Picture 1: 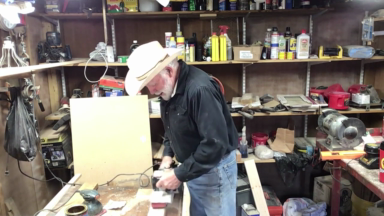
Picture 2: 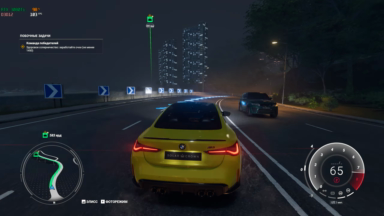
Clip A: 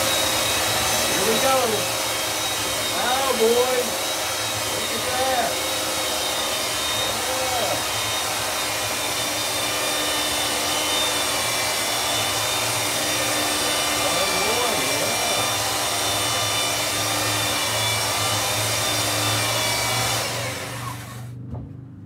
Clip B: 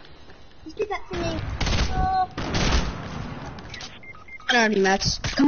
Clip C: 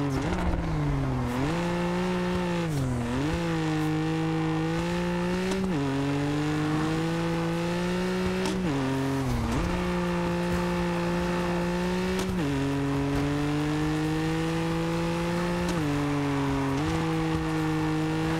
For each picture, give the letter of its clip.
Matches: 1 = A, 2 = C